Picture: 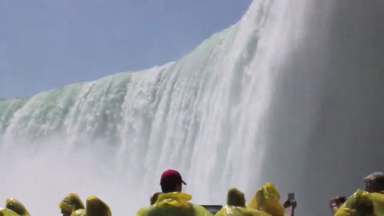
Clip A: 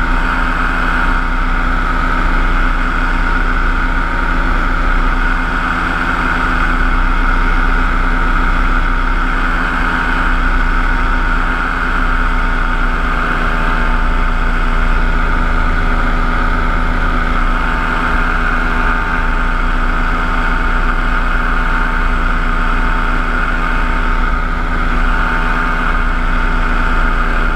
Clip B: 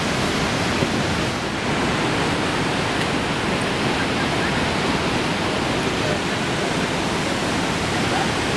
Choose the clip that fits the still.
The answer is B